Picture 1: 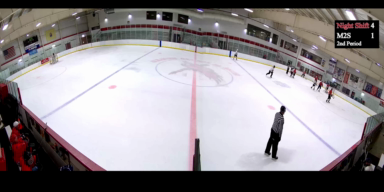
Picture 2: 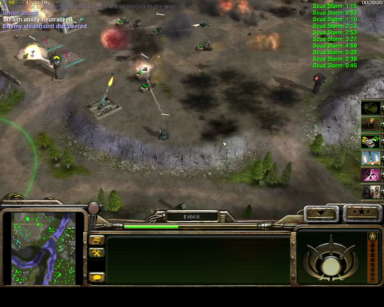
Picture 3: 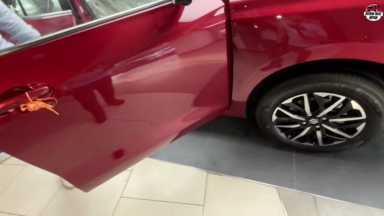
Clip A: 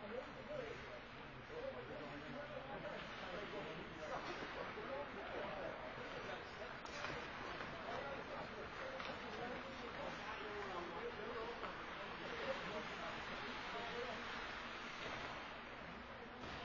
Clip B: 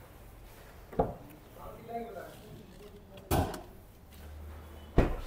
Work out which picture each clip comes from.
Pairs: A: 1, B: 3